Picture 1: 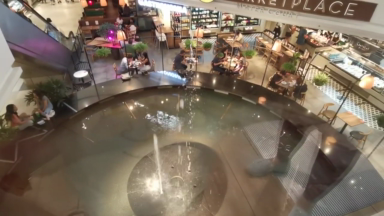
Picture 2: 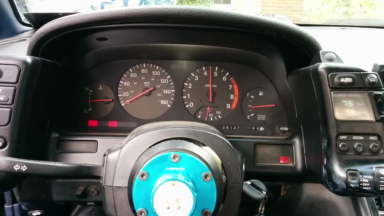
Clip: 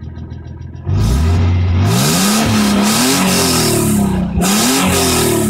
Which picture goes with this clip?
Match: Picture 2